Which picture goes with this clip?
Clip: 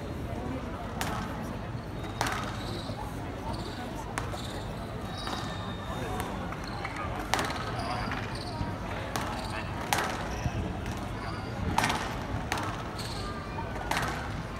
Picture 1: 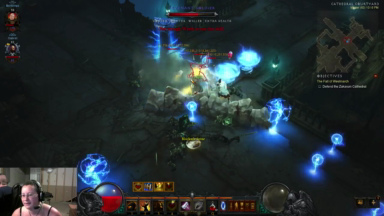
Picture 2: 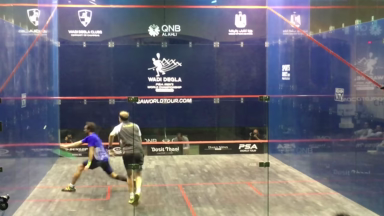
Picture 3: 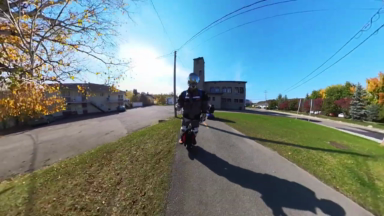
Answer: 2